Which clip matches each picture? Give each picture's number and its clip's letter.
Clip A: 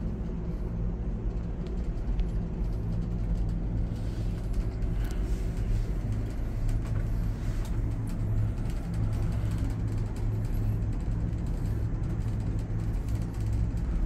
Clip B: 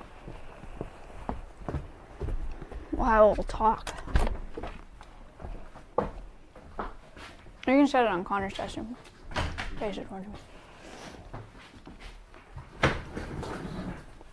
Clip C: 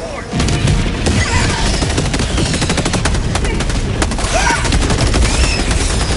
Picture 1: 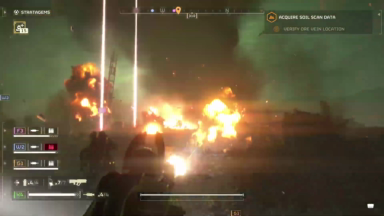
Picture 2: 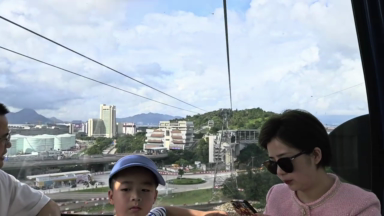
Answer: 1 C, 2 A